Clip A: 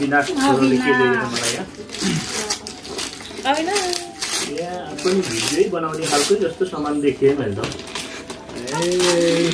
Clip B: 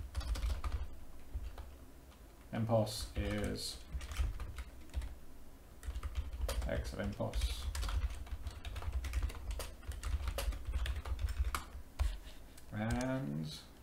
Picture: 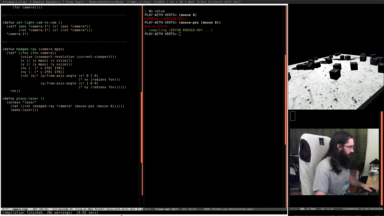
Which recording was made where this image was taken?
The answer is B